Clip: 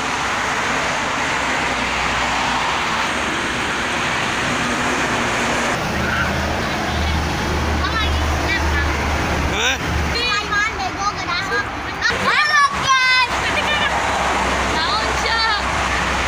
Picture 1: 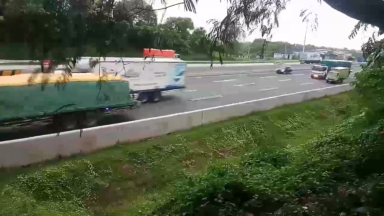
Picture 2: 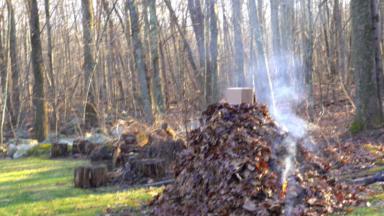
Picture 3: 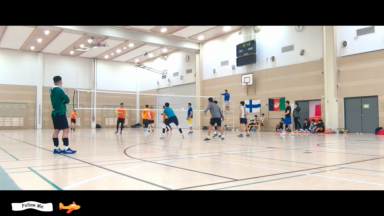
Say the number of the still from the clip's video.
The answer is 1